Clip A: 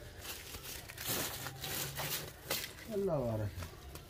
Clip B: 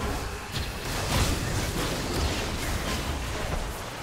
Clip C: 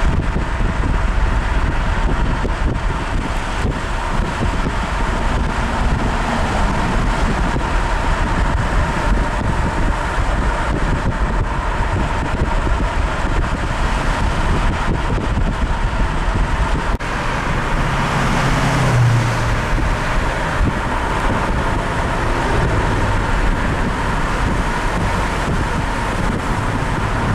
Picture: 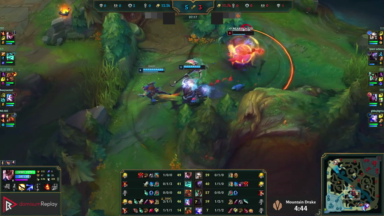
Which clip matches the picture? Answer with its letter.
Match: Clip B